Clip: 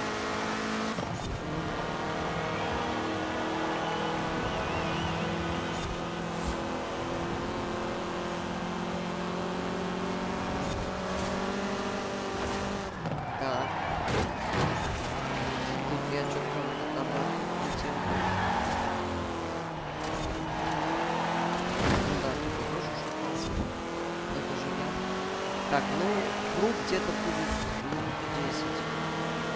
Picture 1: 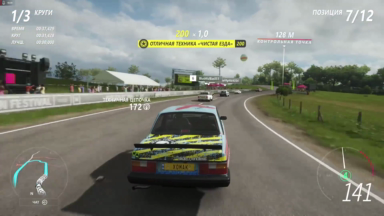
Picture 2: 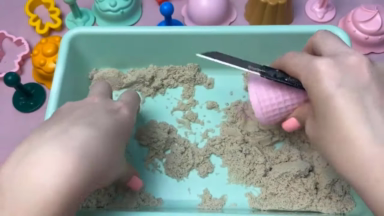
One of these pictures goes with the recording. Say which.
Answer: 1